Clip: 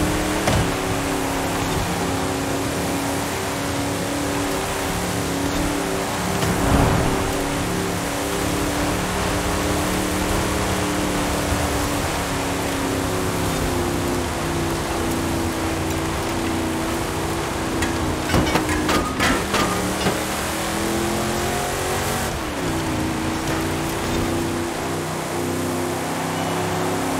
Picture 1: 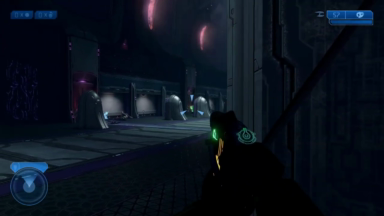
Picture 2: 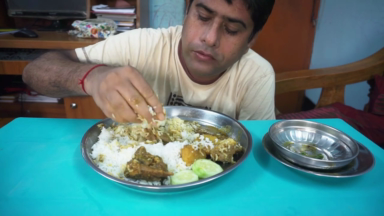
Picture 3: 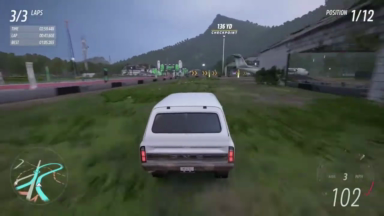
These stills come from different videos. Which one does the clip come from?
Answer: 3